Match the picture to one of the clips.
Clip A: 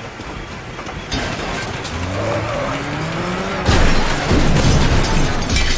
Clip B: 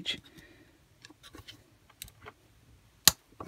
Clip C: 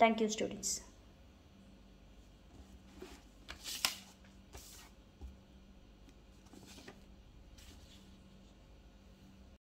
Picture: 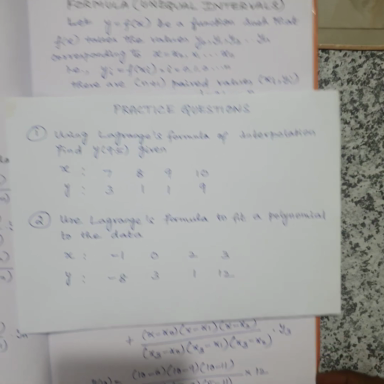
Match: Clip C